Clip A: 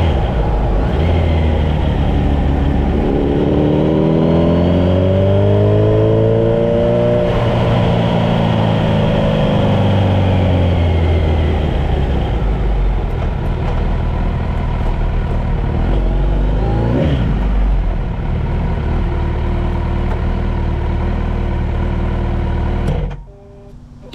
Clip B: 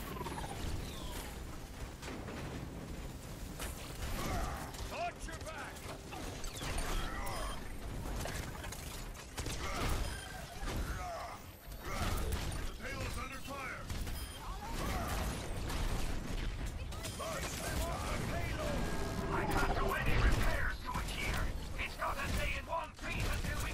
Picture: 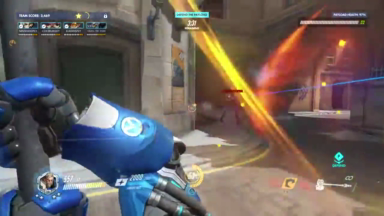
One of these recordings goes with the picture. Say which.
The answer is B